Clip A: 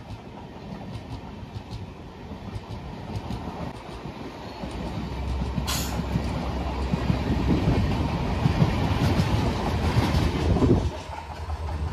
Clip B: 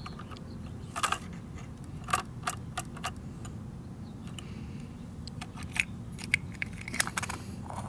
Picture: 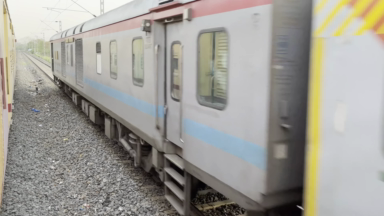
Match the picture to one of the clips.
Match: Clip A